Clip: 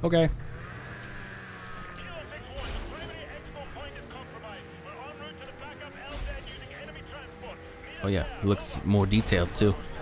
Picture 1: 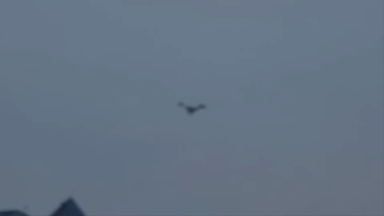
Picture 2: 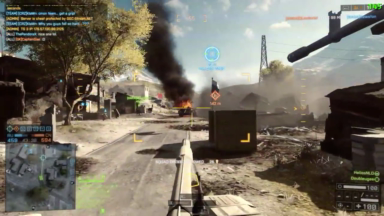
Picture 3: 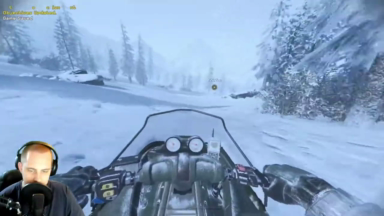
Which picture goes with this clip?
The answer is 3